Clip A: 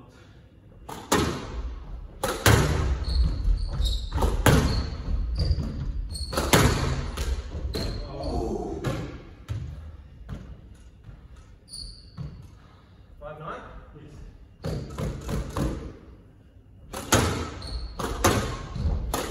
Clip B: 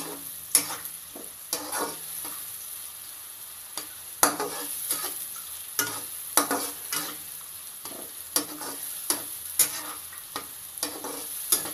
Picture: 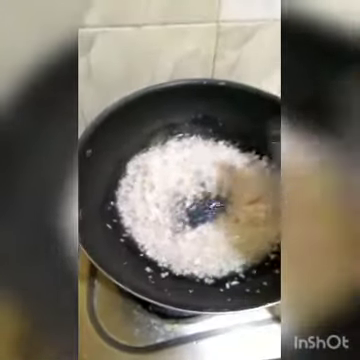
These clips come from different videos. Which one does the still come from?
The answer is B